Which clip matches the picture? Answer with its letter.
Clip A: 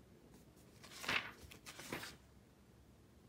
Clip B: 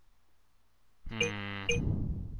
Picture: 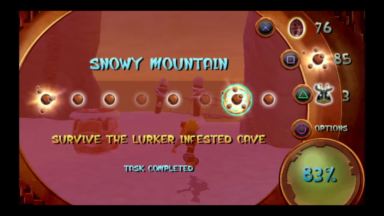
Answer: B